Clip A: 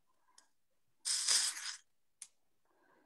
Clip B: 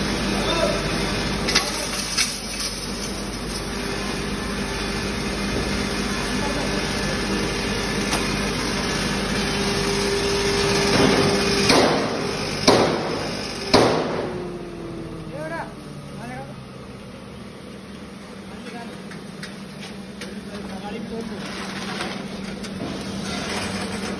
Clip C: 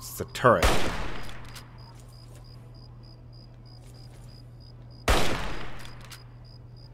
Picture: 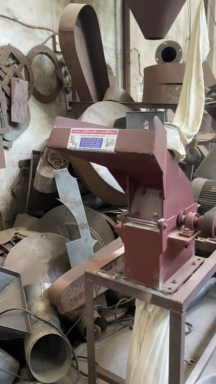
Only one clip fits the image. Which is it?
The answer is B